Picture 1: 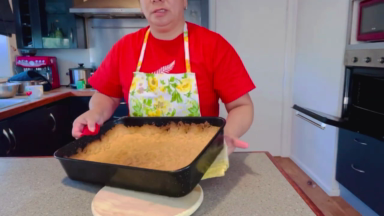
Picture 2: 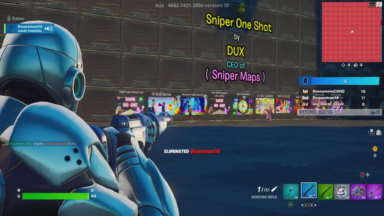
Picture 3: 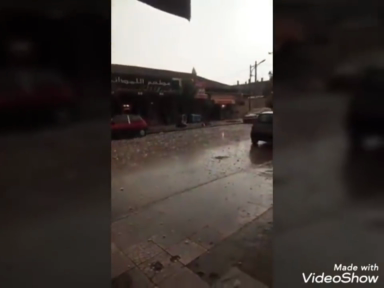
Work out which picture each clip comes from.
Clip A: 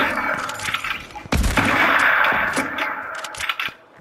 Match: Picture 2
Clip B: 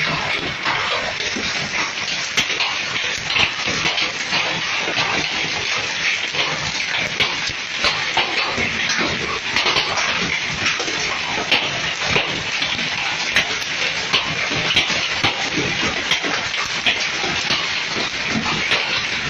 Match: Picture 3